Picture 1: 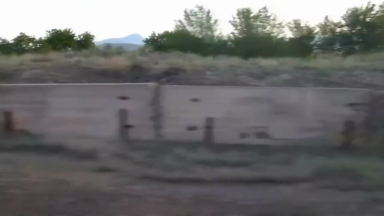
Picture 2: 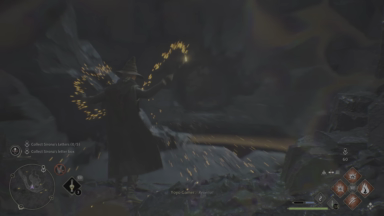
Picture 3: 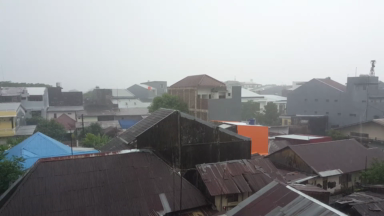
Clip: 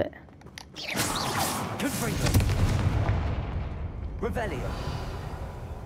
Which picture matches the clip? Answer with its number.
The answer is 2